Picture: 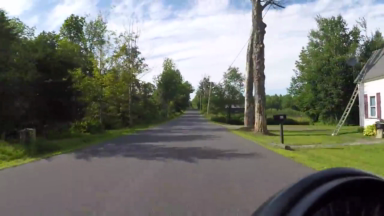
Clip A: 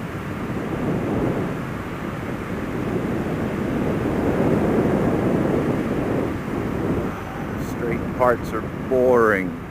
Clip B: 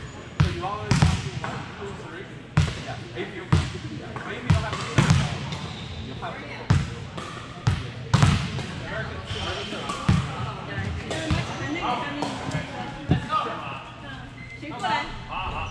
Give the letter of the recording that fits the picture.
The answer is A